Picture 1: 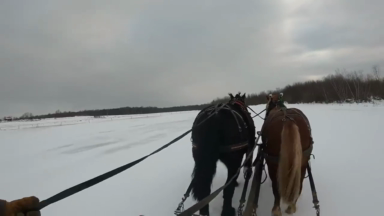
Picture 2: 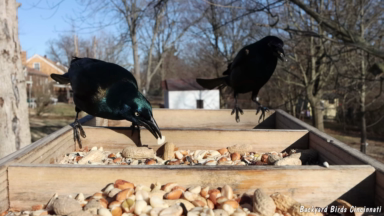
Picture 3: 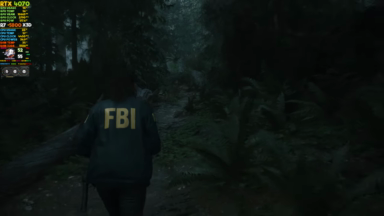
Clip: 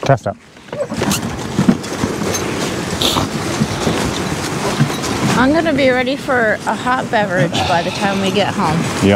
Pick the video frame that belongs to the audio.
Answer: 1